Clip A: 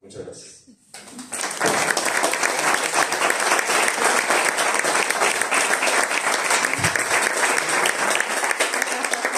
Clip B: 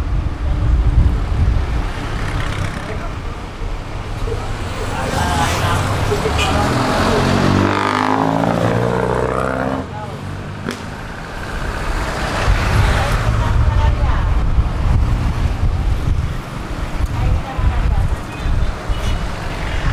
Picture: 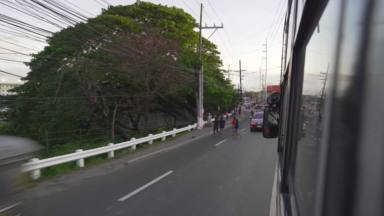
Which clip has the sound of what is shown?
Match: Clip B